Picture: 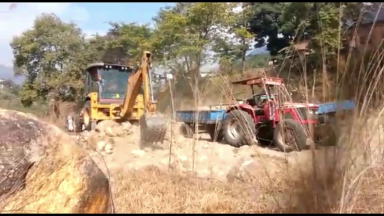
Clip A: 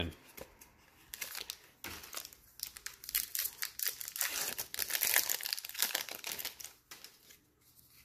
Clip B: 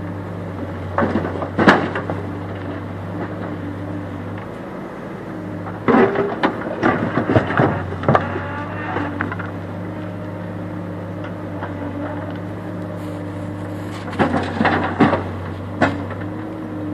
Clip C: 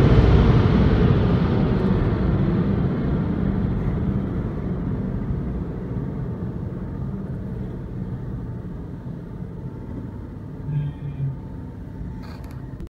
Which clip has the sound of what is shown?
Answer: B